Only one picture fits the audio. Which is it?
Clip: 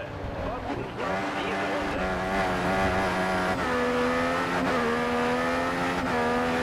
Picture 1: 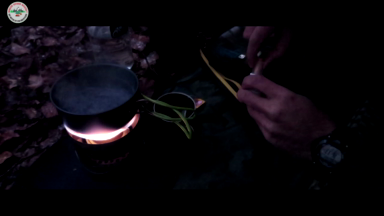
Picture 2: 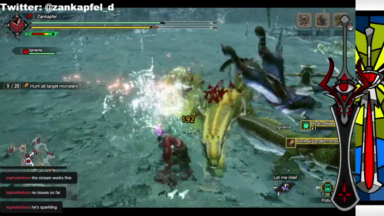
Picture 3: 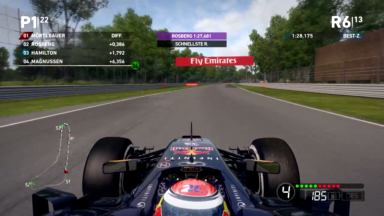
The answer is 3